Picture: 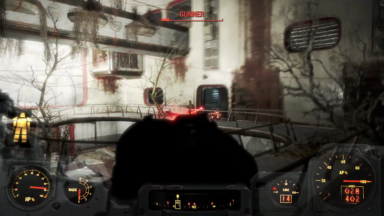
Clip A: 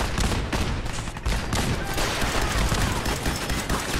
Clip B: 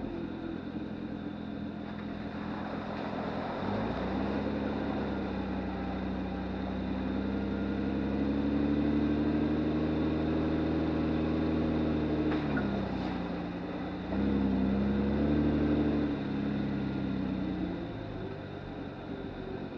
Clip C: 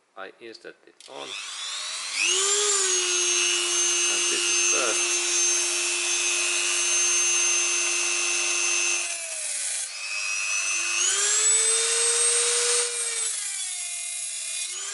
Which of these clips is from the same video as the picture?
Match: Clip A